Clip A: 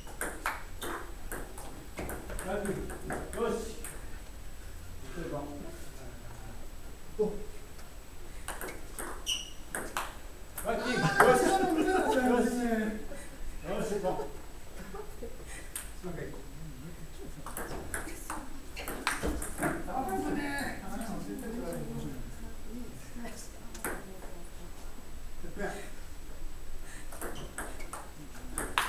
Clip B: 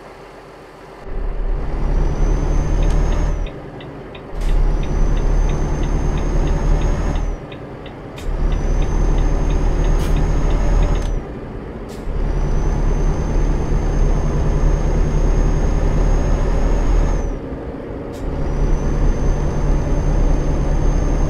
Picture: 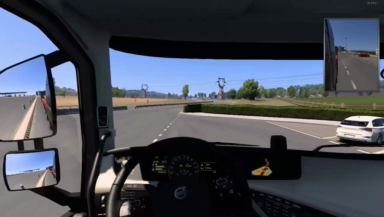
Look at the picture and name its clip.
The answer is B